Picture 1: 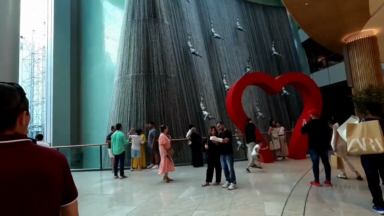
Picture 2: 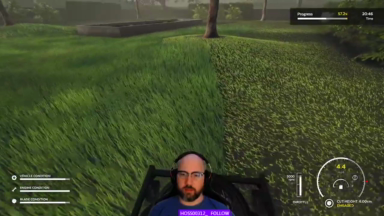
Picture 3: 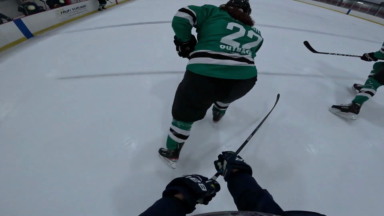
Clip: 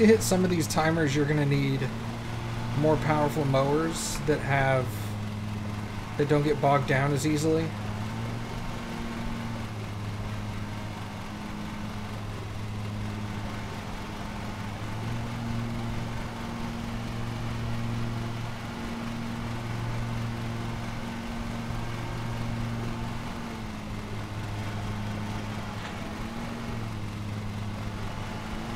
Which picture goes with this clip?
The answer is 2